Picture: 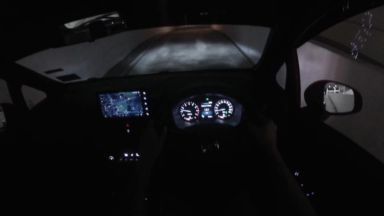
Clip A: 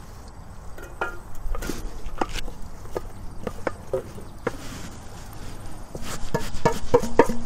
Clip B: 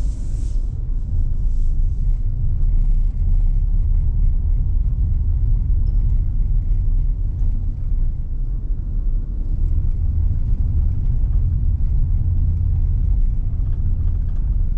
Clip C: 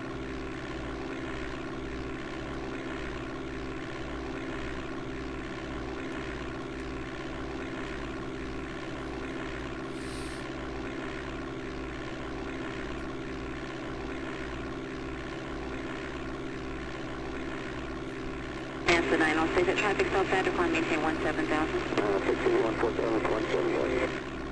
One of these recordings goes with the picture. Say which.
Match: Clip B